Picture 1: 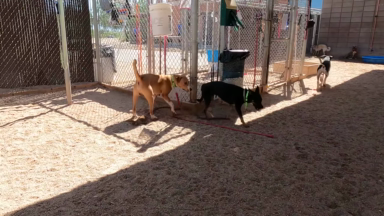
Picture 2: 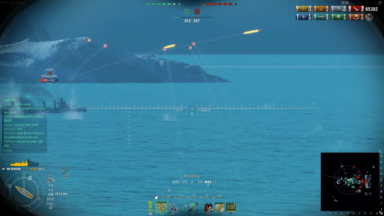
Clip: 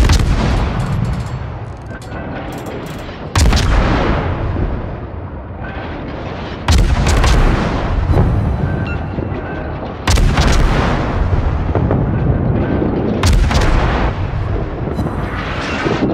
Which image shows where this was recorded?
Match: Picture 2